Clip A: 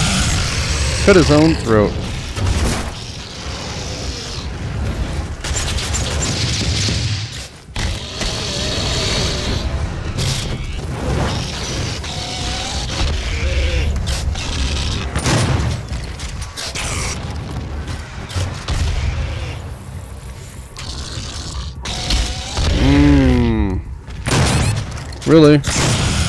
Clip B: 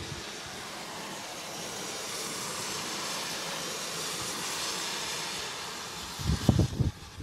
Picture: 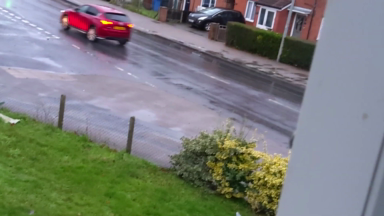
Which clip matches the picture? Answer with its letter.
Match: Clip B